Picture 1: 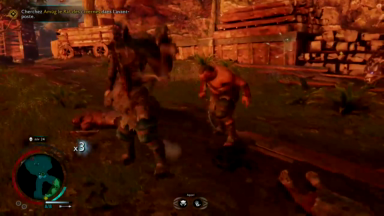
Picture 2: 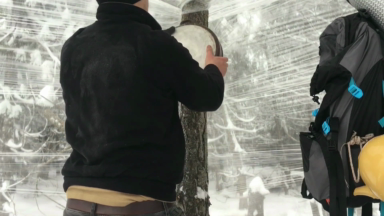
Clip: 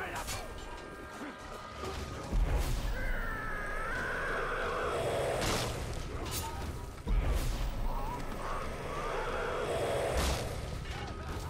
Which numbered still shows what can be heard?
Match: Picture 1